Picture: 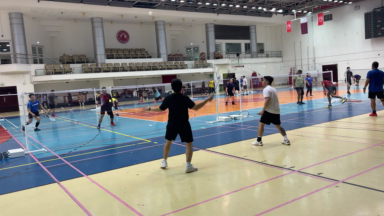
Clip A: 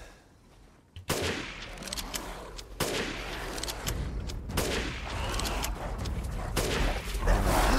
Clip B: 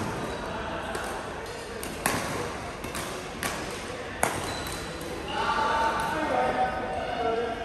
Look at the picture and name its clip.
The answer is B